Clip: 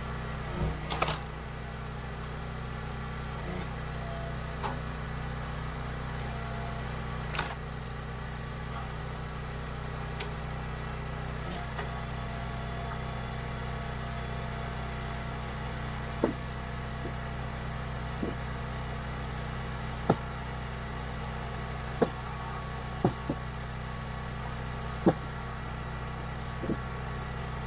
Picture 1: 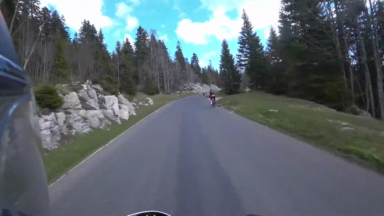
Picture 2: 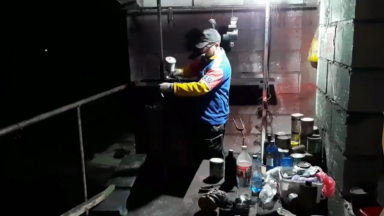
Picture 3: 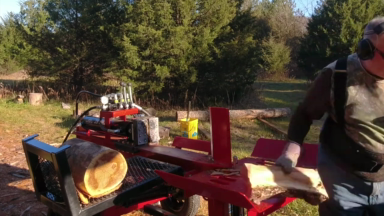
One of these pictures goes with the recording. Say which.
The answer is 3